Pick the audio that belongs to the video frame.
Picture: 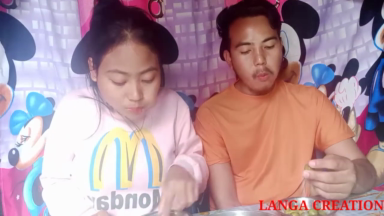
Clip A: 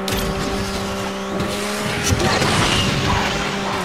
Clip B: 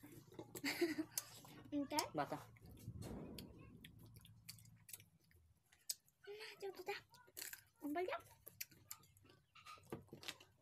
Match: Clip B